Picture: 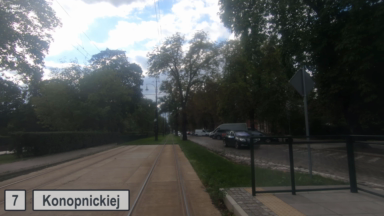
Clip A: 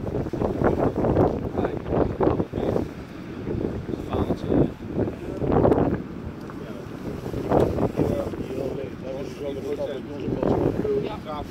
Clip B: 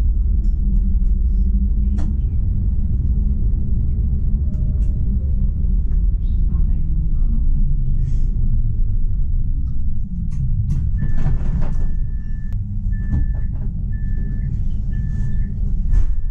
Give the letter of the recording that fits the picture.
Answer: B